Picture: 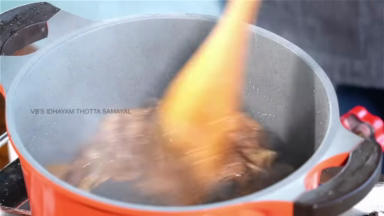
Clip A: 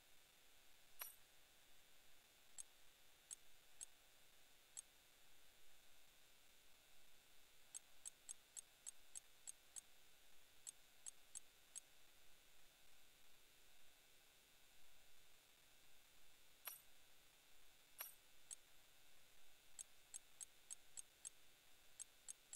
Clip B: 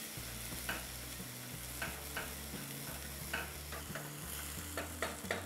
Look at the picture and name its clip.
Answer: B